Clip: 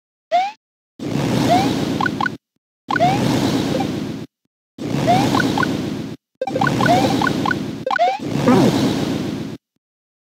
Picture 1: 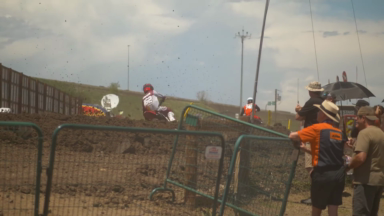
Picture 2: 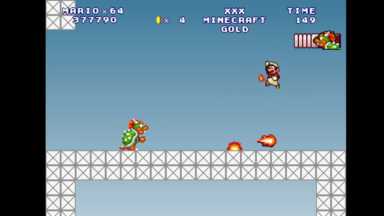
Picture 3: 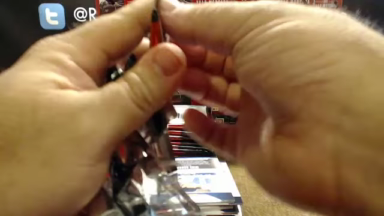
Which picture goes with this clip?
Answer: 2